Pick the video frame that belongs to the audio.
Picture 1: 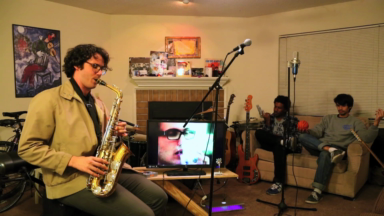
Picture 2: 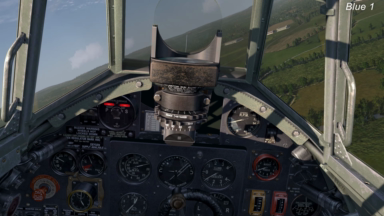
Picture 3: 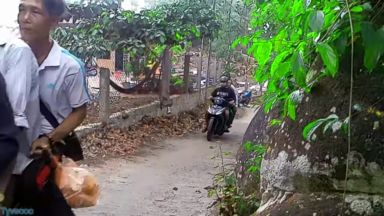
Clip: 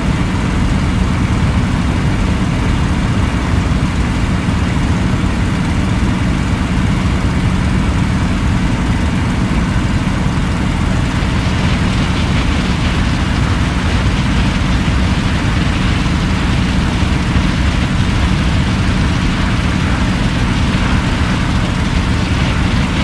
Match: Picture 2